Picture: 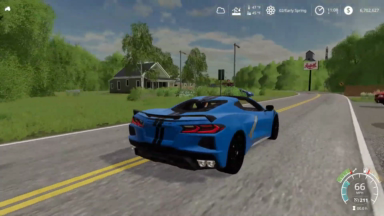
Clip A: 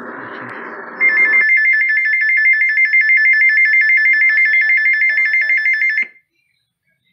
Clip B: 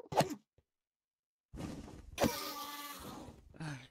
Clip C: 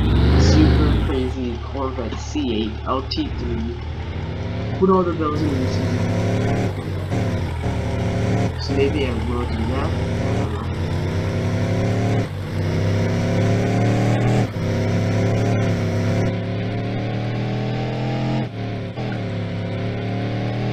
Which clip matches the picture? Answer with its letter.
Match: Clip C